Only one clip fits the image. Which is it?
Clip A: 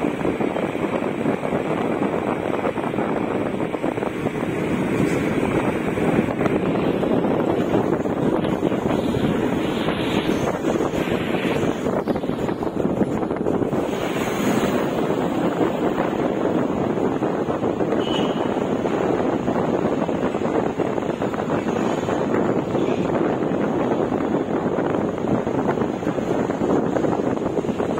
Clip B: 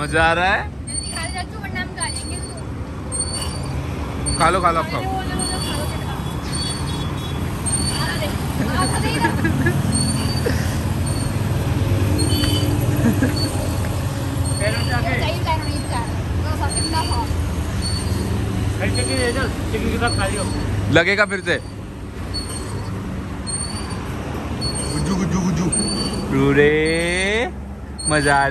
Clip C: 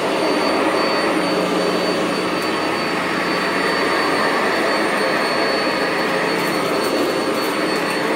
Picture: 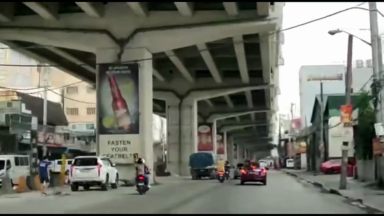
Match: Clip A